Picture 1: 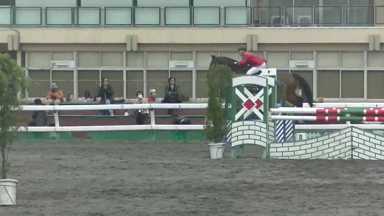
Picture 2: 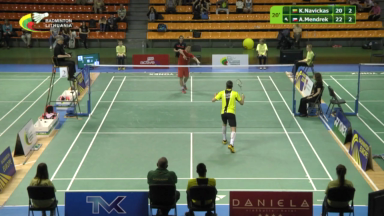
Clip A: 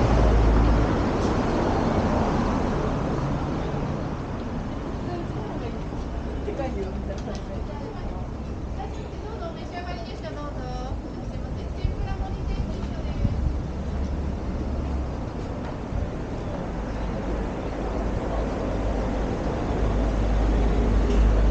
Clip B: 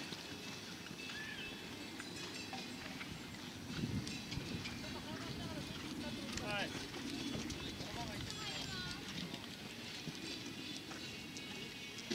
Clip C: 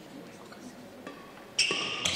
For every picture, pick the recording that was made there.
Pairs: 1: B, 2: C